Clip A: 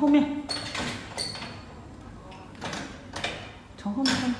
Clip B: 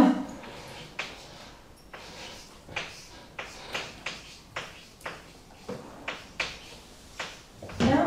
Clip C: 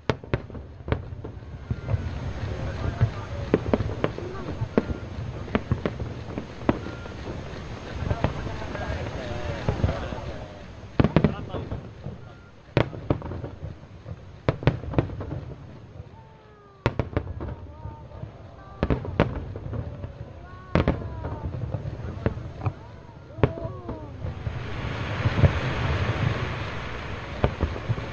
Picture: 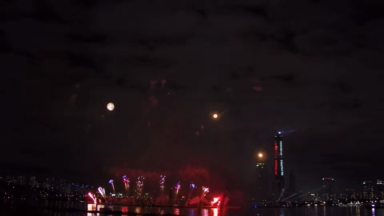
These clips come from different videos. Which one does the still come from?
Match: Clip C